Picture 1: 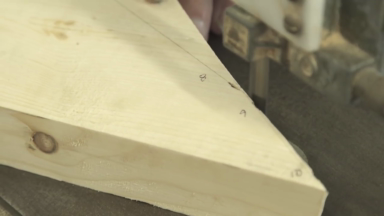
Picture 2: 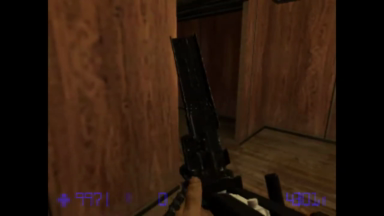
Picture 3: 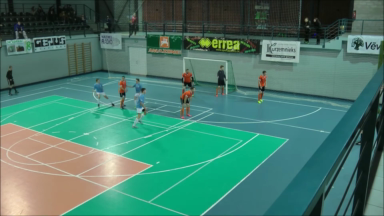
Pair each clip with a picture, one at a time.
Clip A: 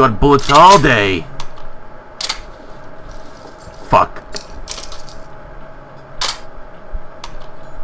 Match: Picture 2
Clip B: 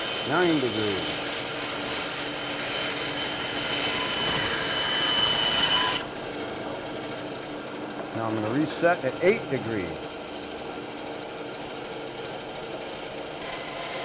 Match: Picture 1